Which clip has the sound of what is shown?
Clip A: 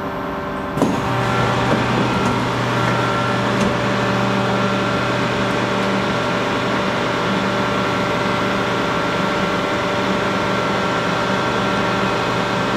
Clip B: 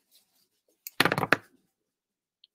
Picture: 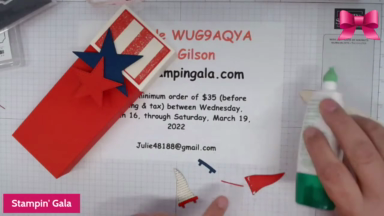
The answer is B